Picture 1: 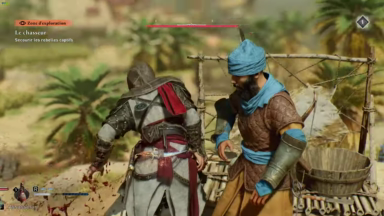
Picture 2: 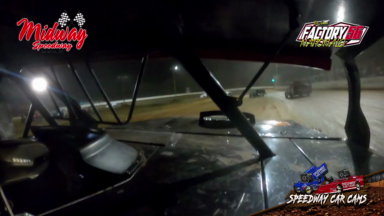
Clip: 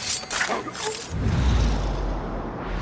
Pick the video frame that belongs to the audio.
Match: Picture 1